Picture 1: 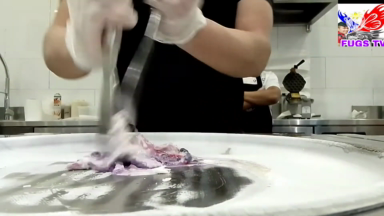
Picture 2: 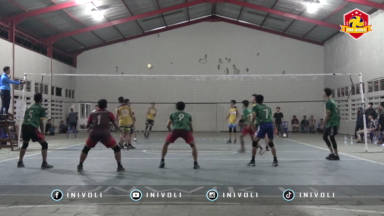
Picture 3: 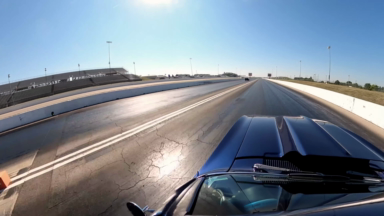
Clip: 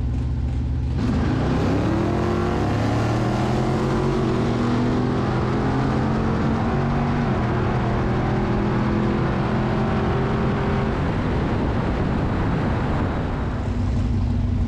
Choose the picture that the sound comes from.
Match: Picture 3